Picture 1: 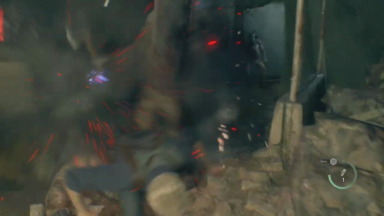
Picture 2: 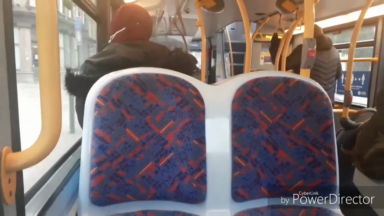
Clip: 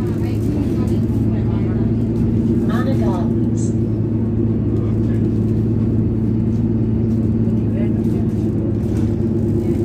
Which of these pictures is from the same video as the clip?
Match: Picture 2